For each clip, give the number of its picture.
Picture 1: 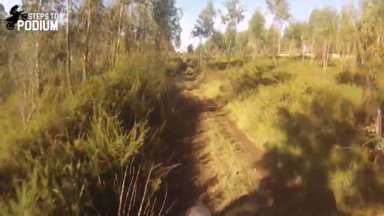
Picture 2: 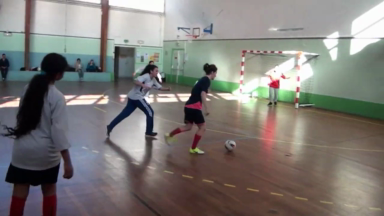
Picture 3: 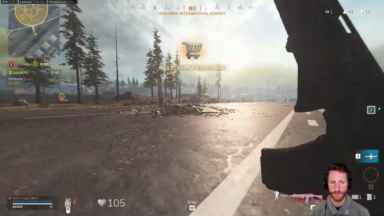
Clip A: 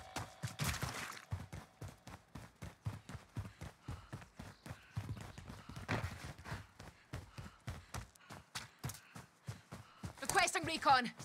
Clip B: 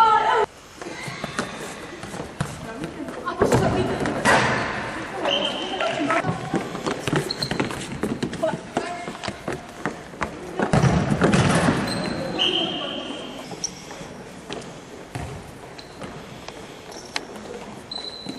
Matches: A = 3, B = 2